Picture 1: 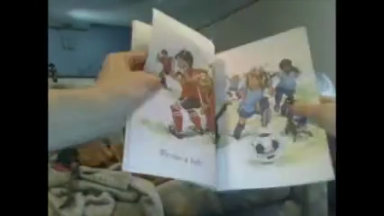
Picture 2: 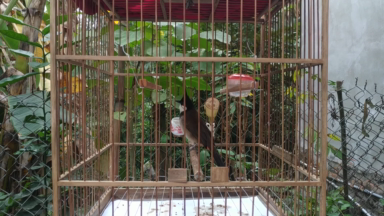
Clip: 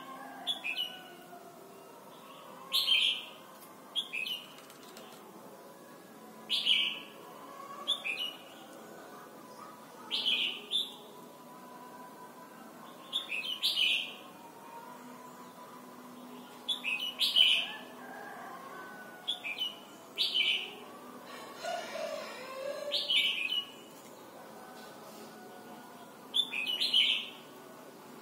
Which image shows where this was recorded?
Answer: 2